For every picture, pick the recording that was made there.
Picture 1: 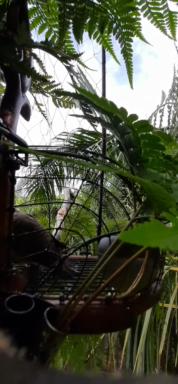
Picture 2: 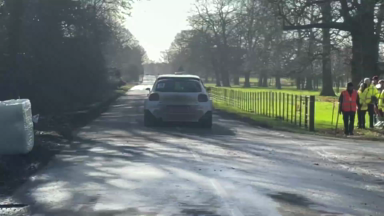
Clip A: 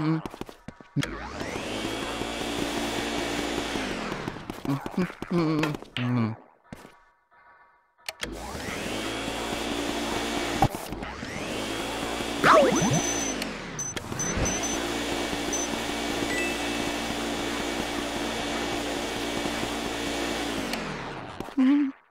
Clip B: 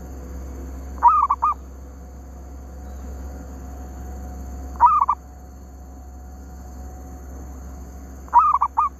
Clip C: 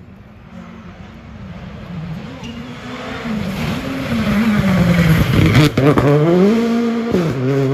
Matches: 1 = B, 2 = C